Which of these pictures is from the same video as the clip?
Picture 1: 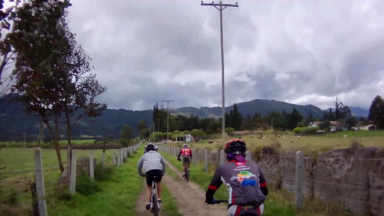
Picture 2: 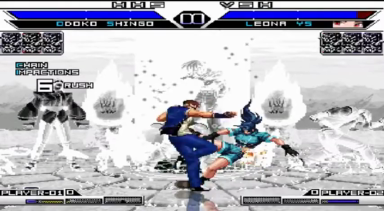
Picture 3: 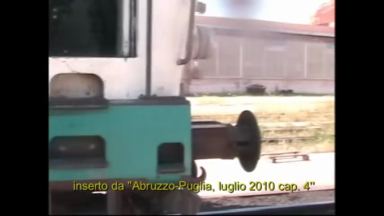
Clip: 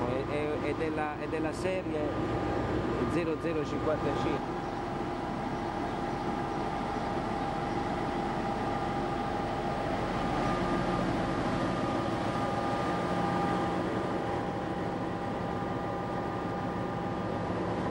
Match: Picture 3